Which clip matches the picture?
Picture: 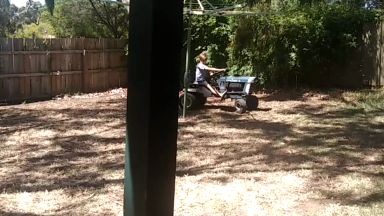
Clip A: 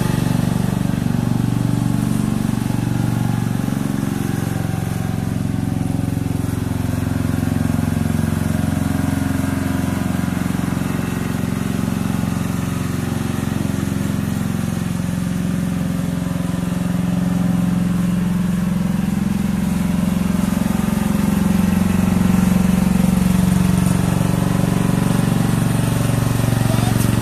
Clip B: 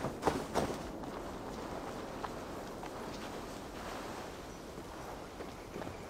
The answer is A